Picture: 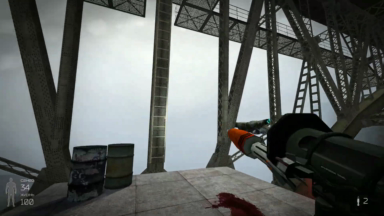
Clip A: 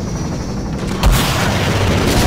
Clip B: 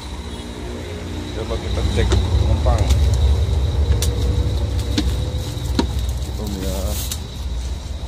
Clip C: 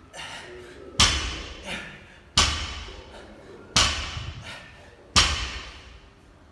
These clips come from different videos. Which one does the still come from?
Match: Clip A